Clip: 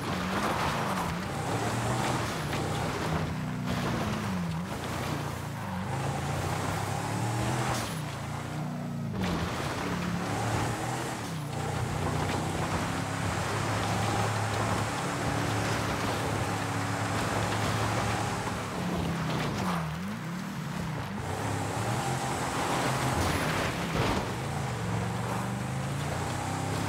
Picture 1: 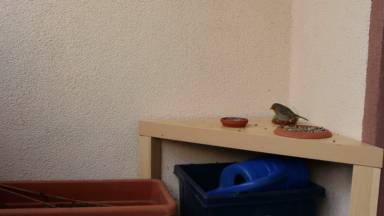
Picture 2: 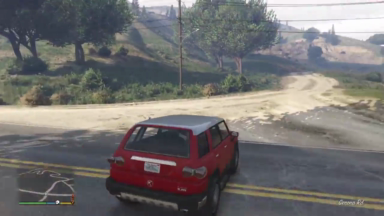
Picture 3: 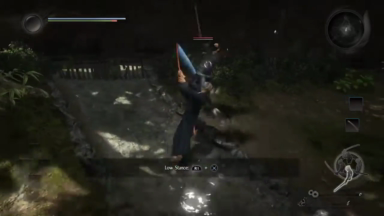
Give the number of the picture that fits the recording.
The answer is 2